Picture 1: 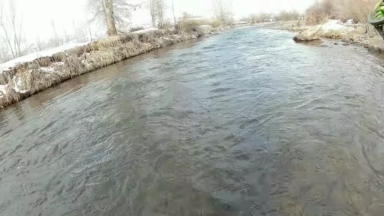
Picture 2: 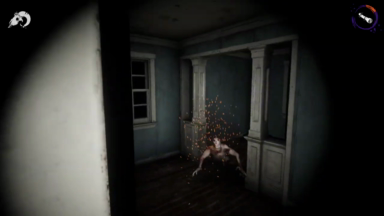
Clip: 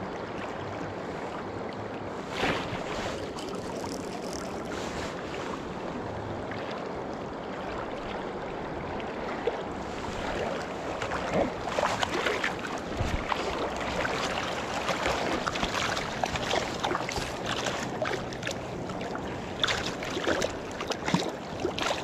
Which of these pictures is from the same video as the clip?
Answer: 1